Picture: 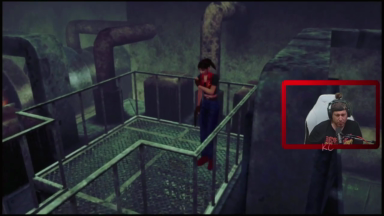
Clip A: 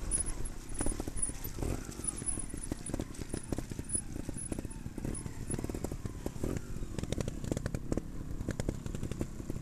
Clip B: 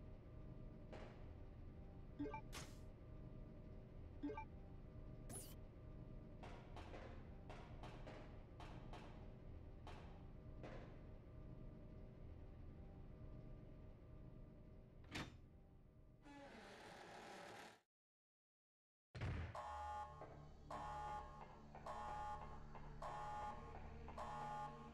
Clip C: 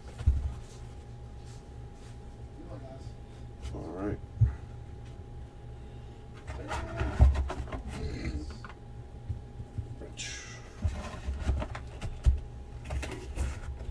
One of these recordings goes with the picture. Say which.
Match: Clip B